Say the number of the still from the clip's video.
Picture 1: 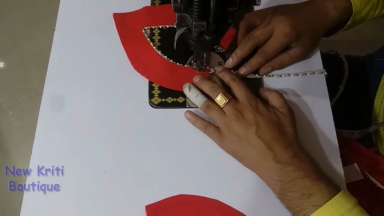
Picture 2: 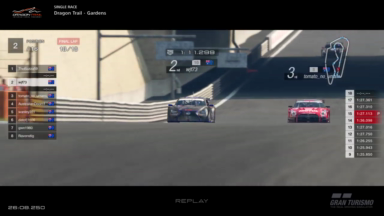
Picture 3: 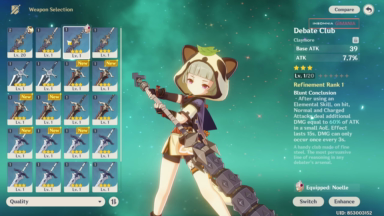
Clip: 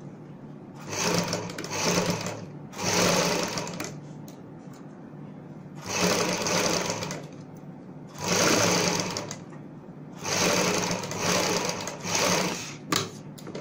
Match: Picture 1